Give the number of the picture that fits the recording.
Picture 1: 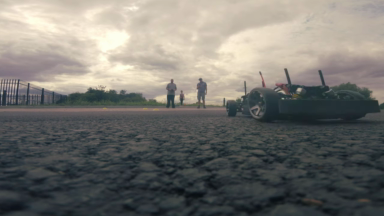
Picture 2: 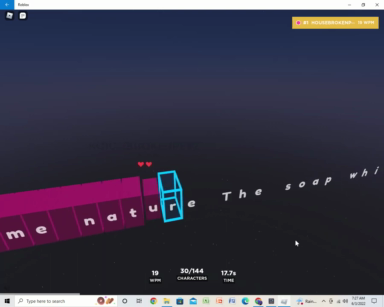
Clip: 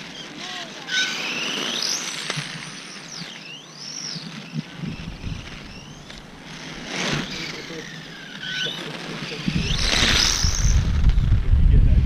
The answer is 1